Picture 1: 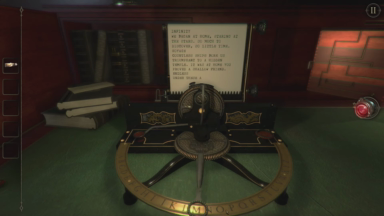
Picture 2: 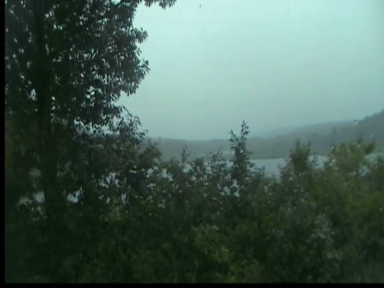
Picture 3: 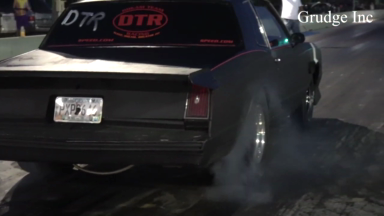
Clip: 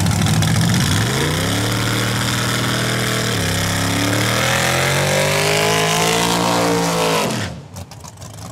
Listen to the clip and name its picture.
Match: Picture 3